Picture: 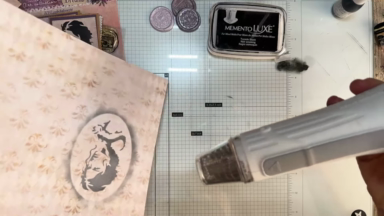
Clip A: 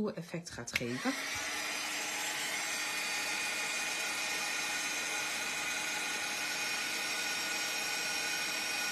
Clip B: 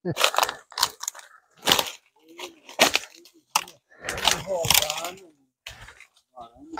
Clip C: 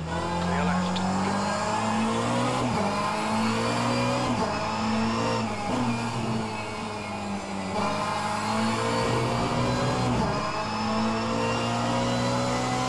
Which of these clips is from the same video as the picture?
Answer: A